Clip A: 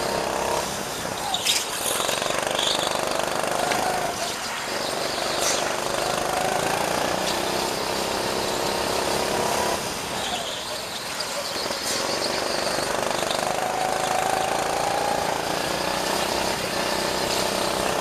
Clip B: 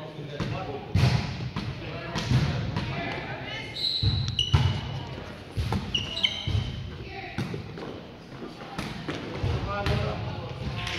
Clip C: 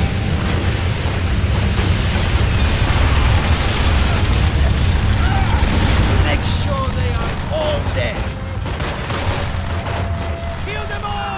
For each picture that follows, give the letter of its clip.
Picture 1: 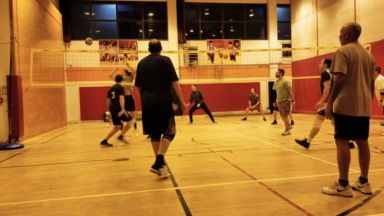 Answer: B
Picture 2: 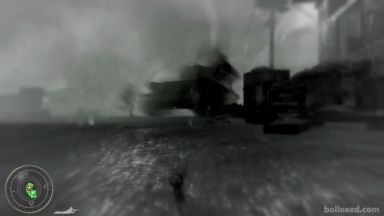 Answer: C